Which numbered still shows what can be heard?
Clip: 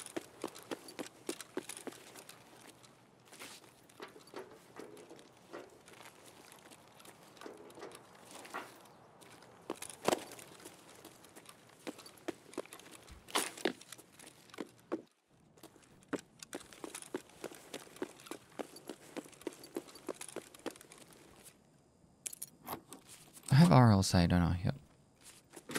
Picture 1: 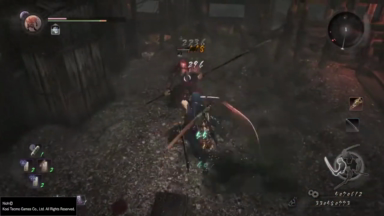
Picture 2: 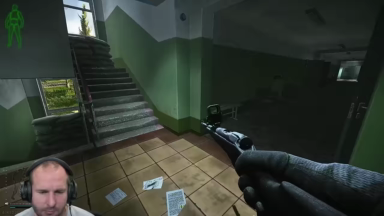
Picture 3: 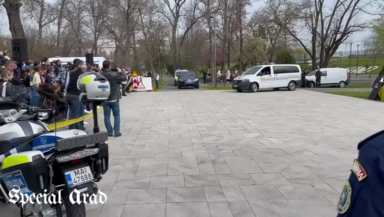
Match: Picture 2